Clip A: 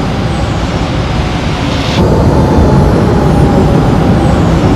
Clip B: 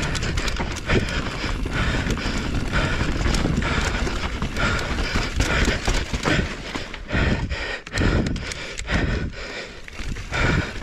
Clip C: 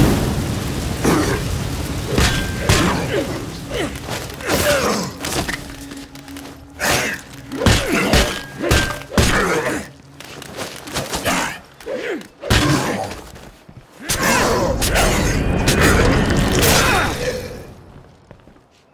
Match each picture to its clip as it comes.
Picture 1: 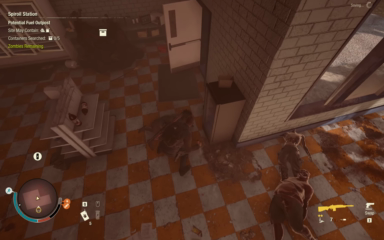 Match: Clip C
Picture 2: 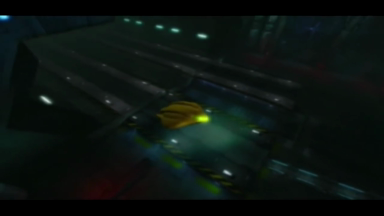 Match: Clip A